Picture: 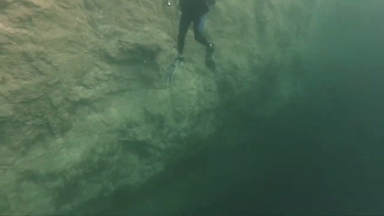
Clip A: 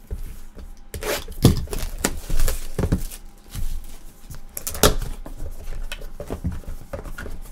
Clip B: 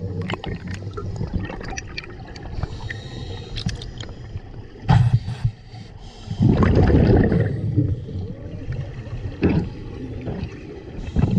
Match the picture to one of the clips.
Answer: B